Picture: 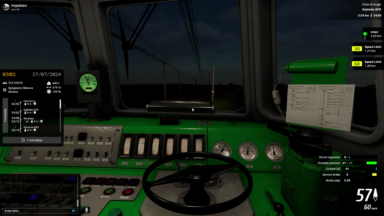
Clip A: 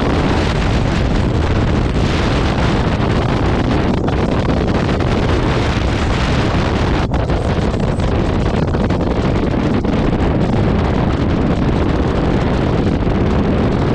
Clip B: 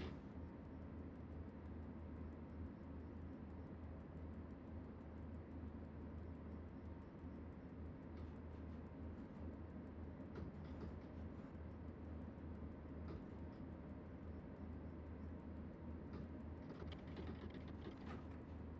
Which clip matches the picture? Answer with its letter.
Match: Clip B